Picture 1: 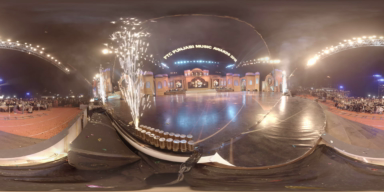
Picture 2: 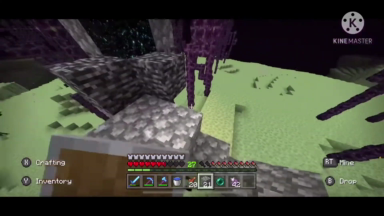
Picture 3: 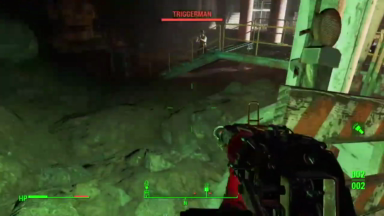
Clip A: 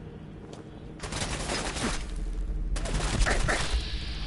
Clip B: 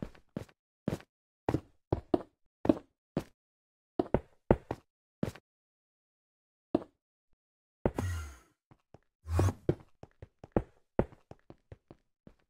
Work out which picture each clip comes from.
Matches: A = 3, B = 2